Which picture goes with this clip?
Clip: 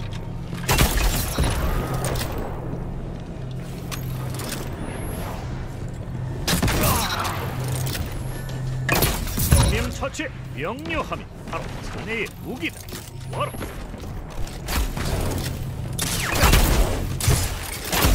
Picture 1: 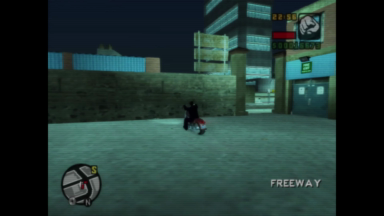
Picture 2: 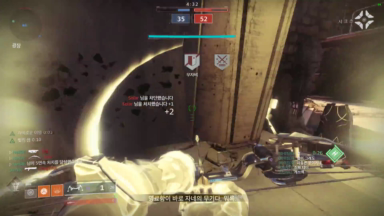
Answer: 2